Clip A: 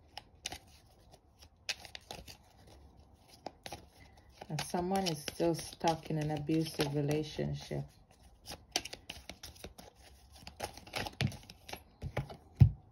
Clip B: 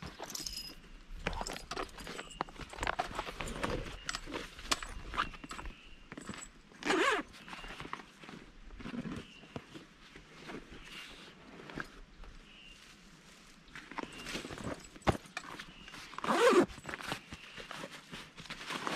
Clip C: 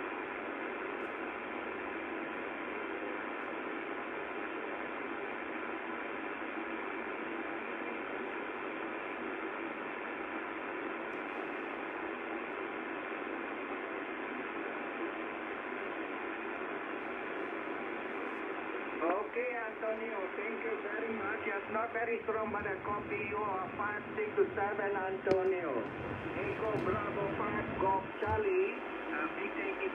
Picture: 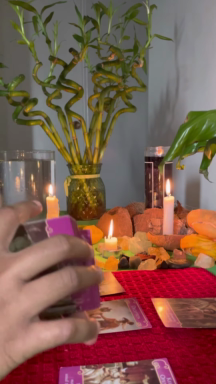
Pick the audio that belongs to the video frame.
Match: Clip A